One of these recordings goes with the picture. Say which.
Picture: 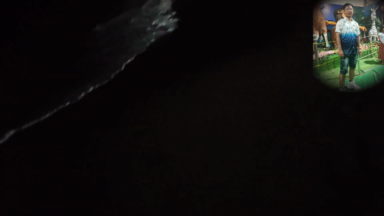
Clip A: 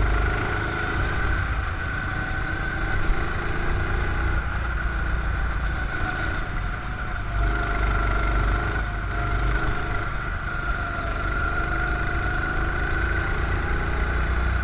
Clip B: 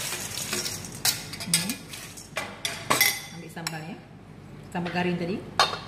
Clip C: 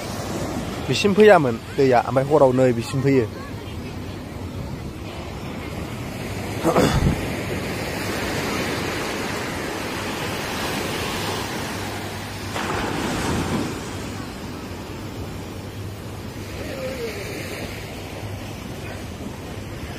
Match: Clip C